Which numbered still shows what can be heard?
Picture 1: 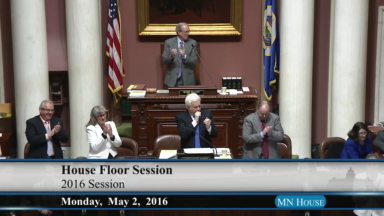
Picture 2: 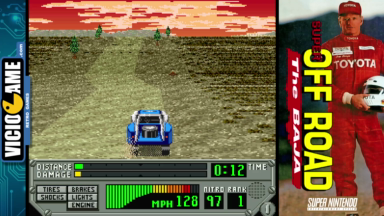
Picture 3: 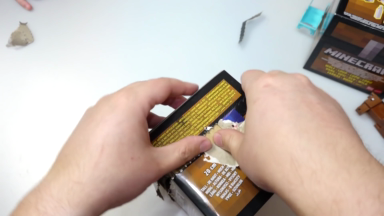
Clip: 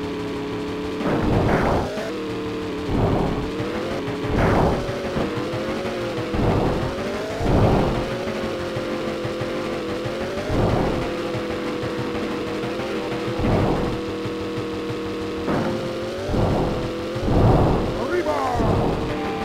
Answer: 2